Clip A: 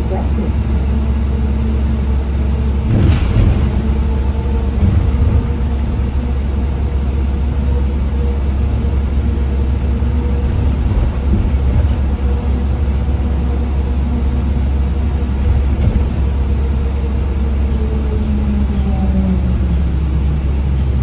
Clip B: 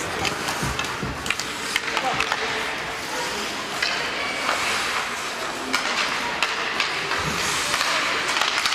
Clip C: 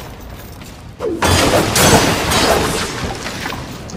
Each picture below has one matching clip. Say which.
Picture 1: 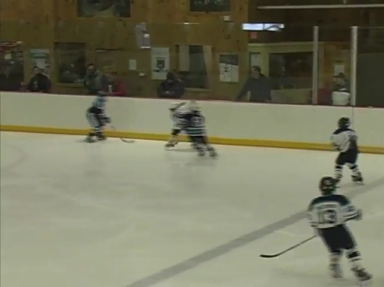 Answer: B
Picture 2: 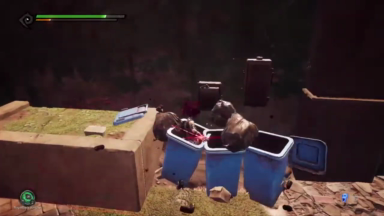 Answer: C